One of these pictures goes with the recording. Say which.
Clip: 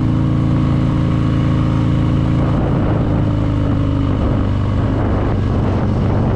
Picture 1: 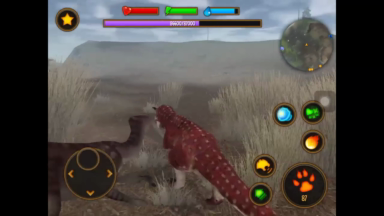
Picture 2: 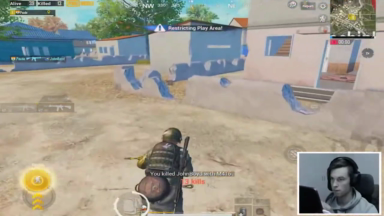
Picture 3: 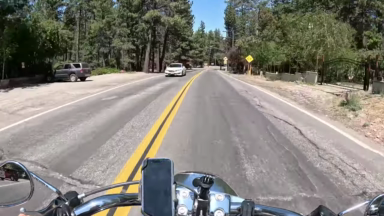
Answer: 3